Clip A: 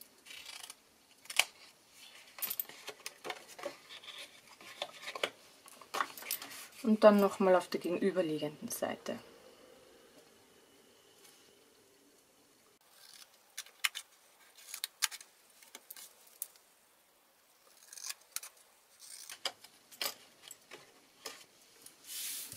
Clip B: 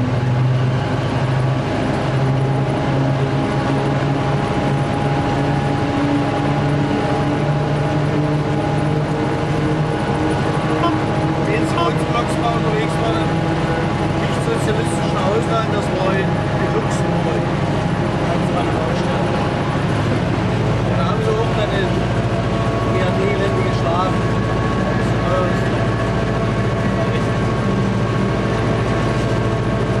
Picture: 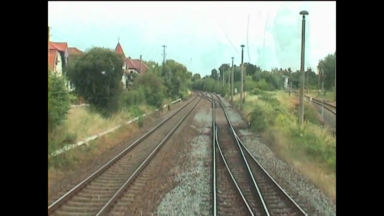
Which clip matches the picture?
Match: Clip B